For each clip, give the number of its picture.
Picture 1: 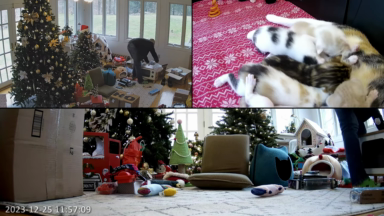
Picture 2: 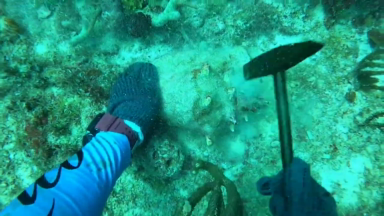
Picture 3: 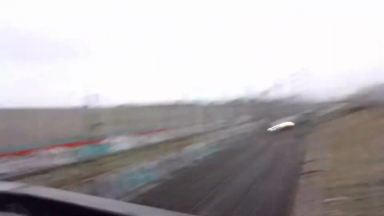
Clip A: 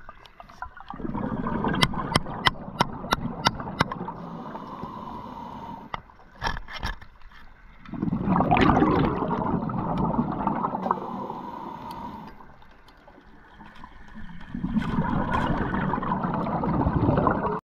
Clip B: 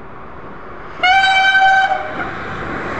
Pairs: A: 2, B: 3